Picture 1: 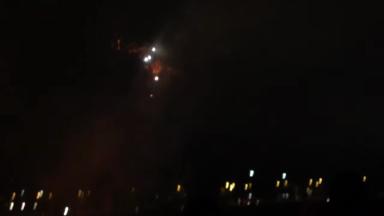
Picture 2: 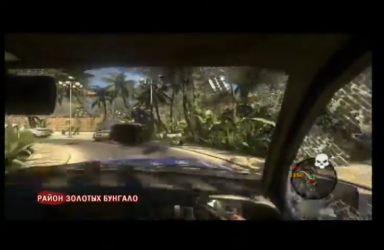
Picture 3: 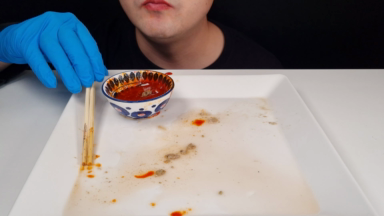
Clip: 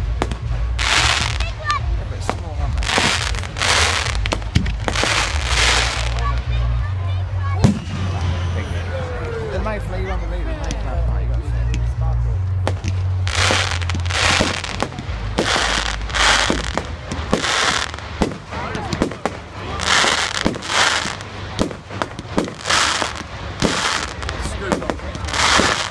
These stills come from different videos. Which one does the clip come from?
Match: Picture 1